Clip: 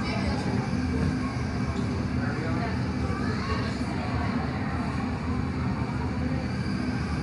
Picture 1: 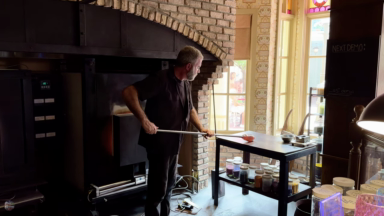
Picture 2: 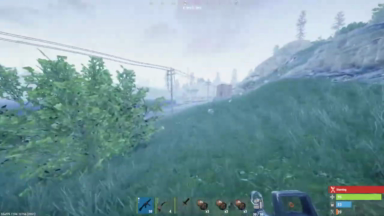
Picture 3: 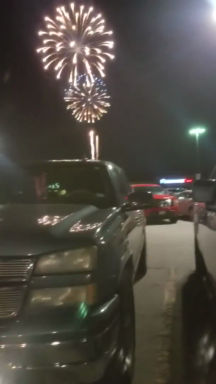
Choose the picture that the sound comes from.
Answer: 1